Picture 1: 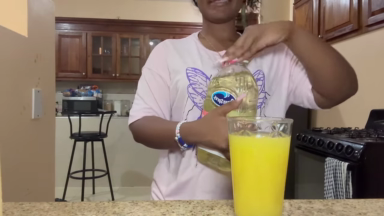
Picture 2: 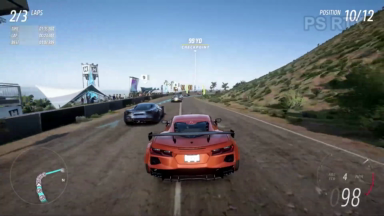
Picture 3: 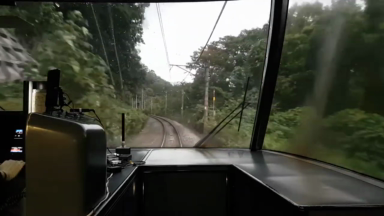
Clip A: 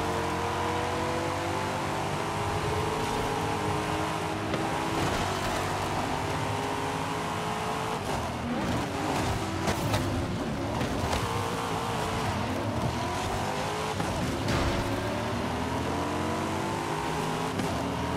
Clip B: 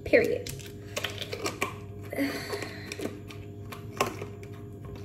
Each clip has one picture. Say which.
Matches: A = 2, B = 1